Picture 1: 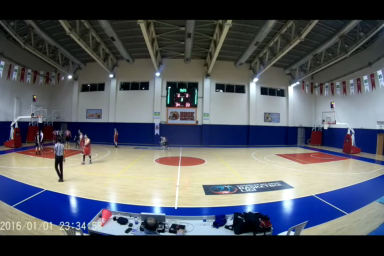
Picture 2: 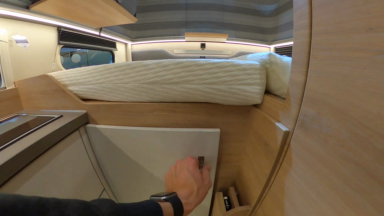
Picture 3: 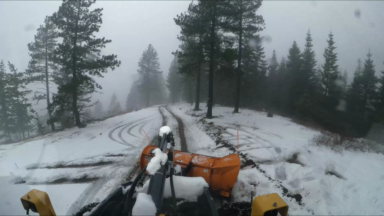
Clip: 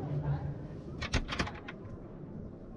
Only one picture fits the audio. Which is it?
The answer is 2